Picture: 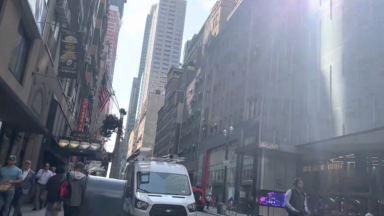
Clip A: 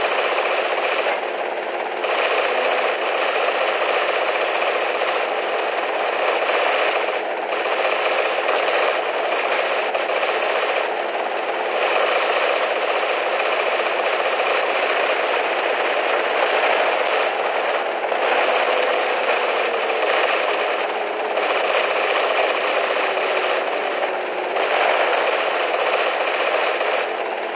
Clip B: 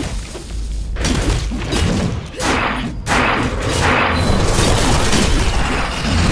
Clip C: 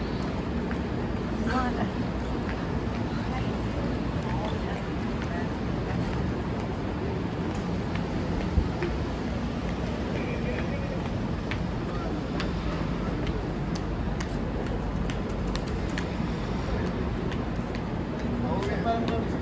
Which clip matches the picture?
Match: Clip C